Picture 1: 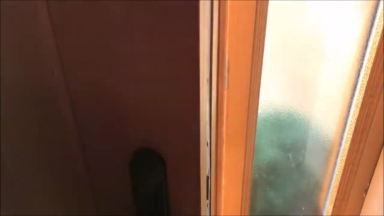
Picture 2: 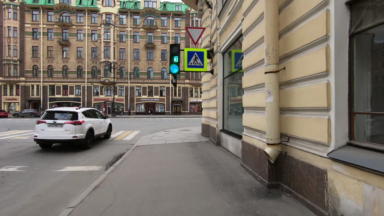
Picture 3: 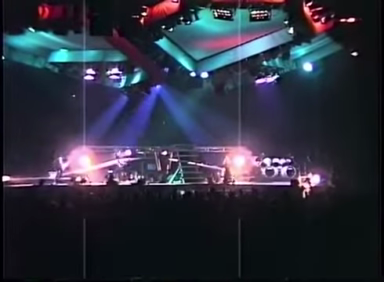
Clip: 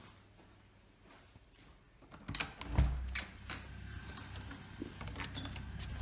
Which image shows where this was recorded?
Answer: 1